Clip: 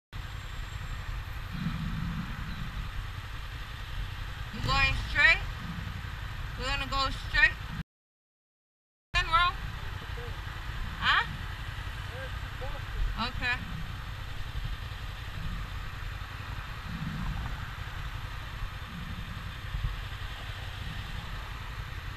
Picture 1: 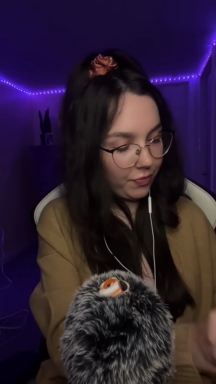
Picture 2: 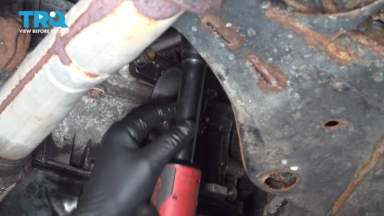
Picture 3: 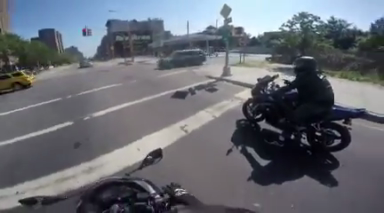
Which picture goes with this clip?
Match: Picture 3